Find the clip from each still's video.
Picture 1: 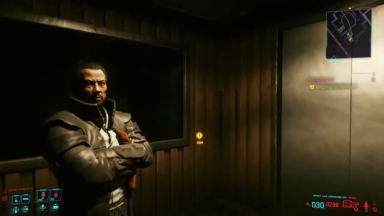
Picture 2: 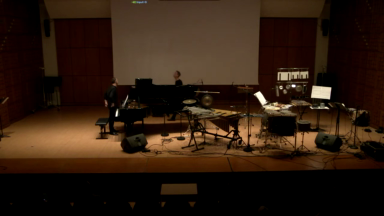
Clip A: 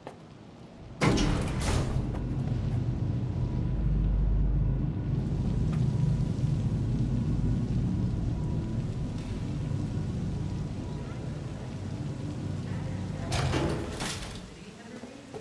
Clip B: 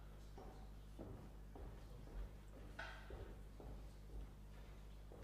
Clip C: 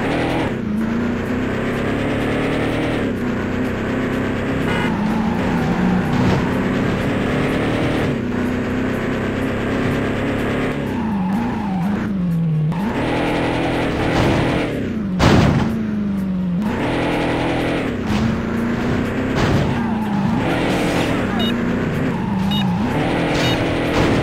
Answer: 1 A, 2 B